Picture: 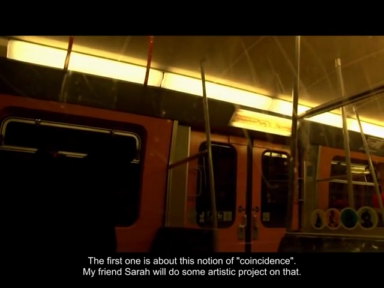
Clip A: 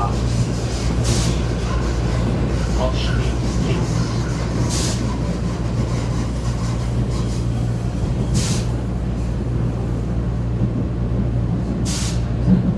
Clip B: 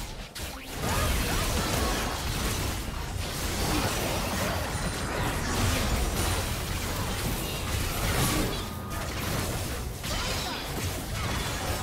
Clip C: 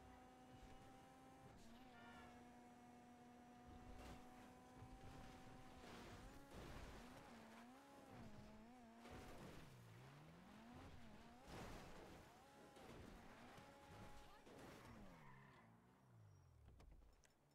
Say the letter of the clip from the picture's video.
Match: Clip A